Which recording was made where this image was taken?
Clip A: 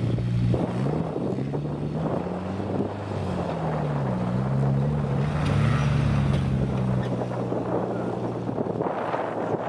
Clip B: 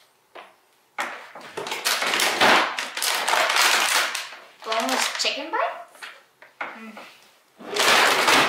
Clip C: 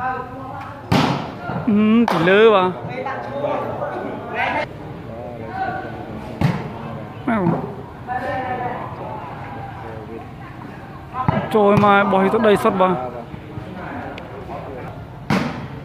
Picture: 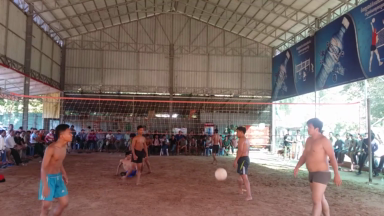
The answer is C